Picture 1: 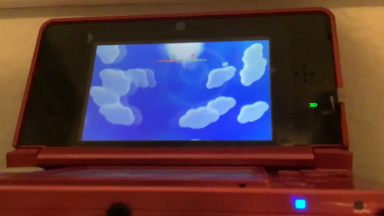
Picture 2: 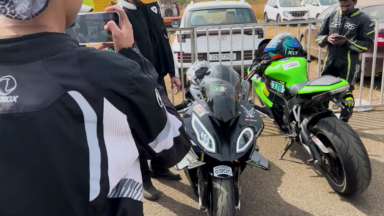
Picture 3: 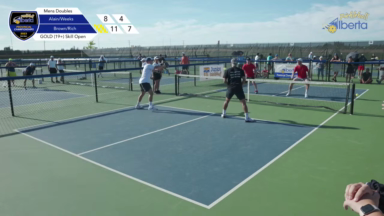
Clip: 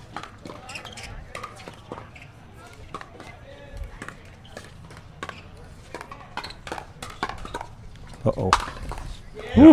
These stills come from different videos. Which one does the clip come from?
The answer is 3